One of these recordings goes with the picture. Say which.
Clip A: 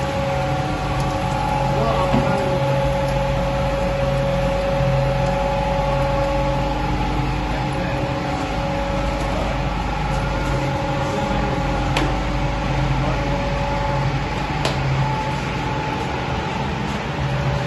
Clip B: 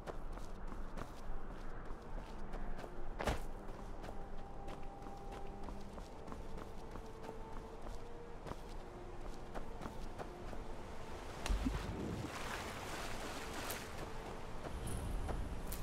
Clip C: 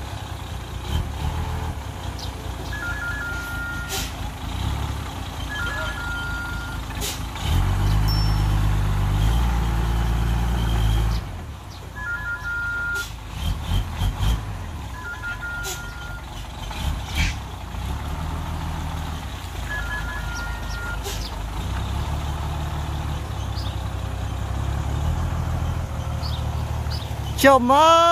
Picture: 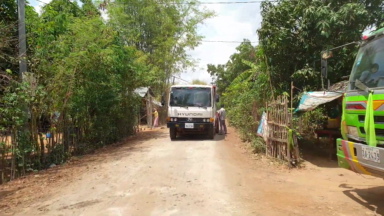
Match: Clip C